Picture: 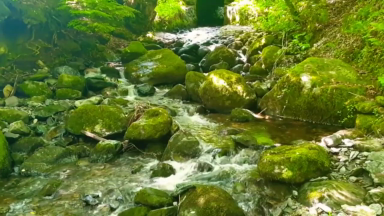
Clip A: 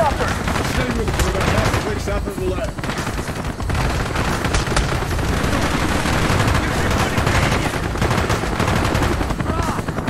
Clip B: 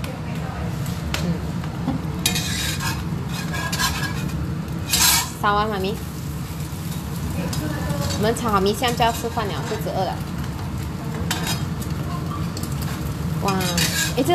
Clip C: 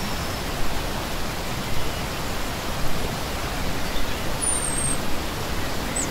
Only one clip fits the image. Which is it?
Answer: C